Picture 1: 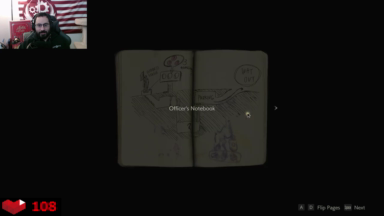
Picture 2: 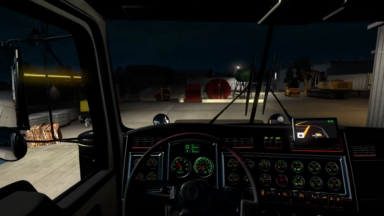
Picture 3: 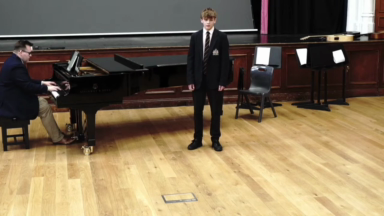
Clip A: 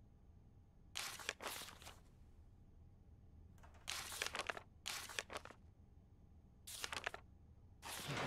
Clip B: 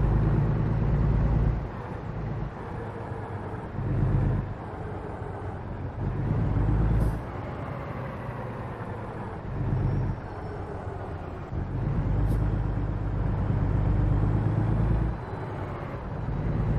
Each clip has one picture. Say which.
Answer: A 1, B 2